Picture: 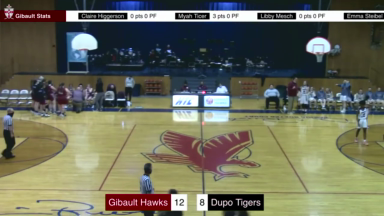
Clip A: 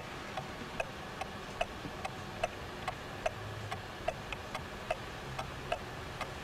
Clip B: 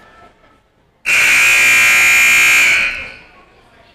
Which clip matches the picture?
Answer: B